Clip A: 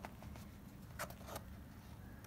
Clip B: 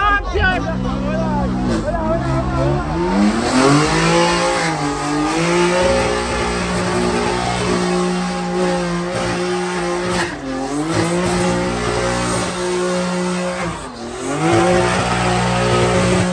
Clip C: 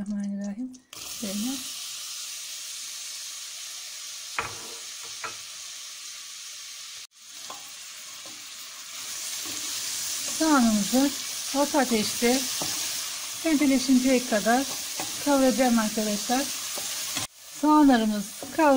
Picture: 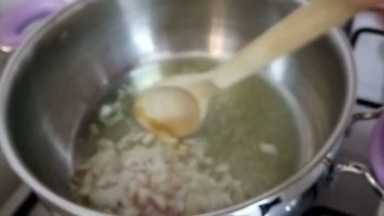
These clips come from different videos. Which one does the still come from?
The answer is C